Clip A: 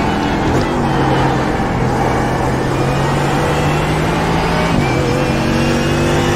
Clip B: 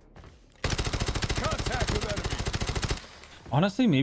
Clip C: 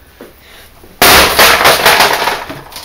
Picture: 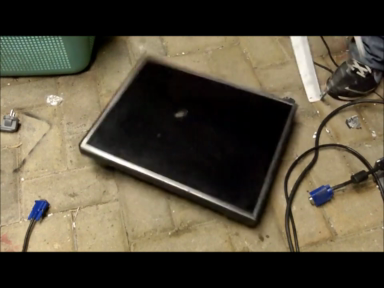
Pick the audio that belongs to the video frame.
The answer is C